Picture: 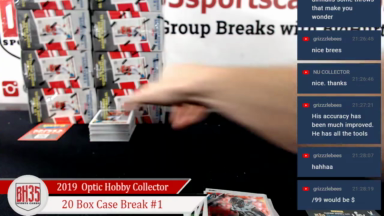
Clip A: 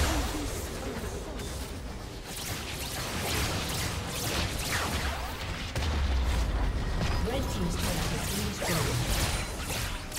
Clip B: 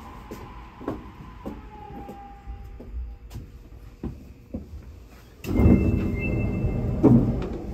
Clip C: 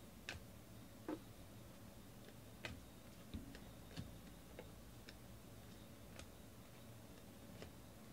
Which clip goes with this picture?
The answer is C